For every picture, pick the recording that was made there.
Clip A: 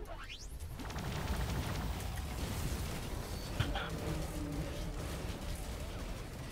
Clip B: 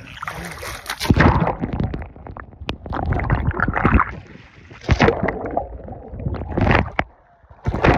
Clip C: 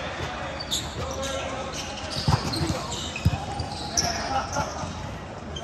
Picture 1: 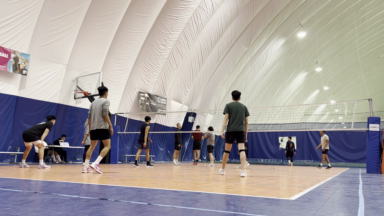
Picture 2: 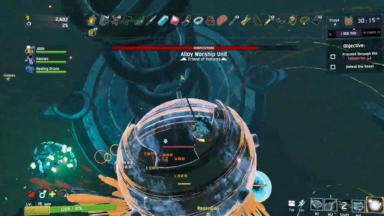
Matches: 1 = C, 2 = A